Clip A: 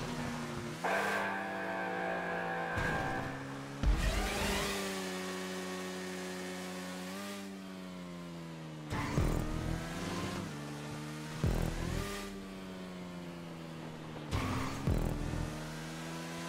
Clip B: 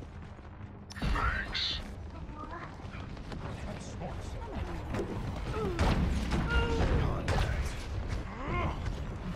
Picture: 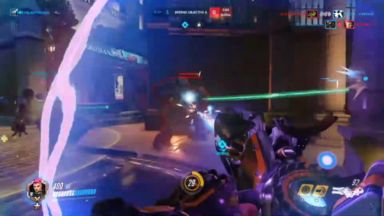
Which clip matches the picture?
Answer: B